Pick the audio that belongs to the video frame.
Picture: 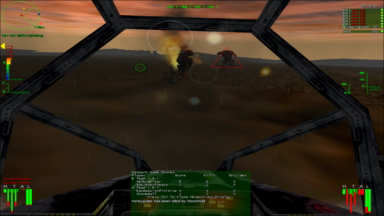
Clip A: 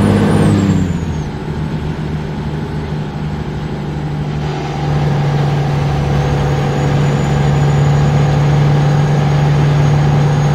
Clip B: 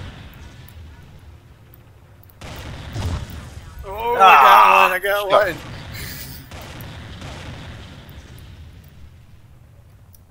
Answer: B